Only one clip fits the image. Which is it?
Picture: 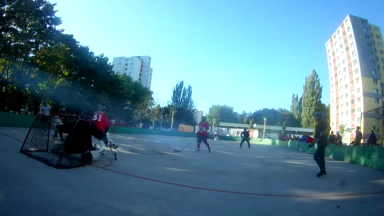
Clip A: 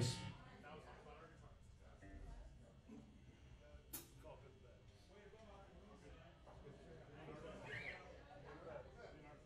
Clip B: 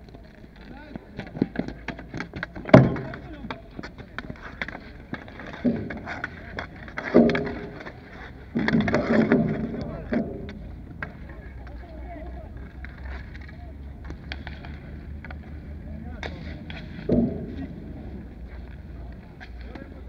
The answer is B